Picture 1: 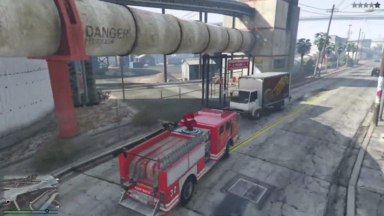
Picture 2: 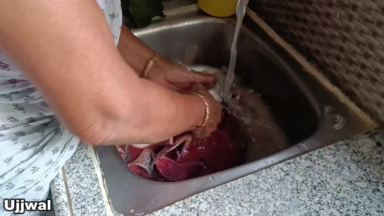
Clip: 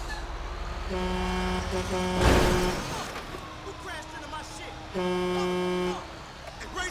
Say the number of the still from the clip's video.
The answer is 1